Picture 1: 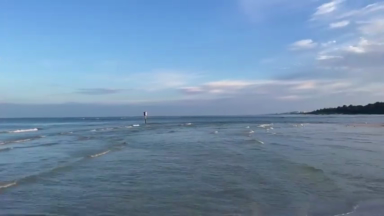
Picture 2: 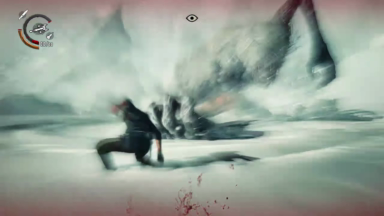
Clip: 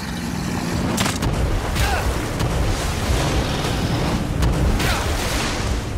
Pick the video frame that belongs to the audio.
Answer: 2